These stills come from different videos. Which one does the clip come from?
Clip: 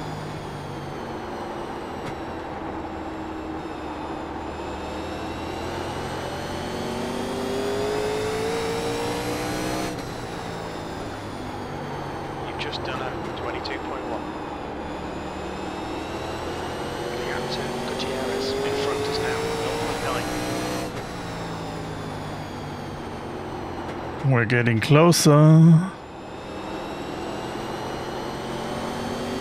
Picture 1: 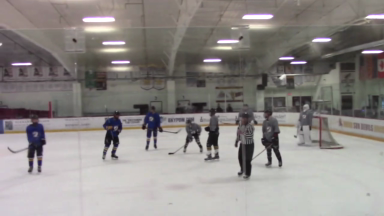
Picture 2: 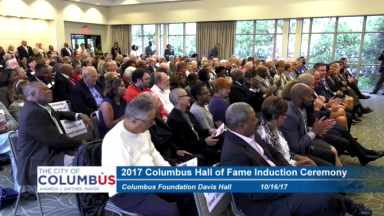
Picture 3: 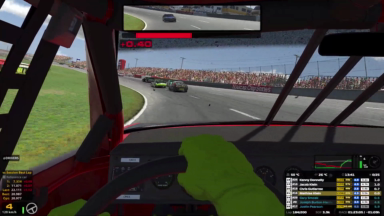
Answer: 3